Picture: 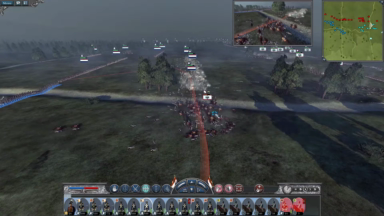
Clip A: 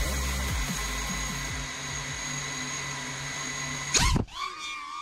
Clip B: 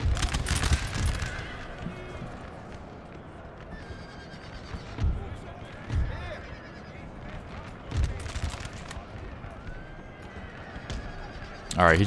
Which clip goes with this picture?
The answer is B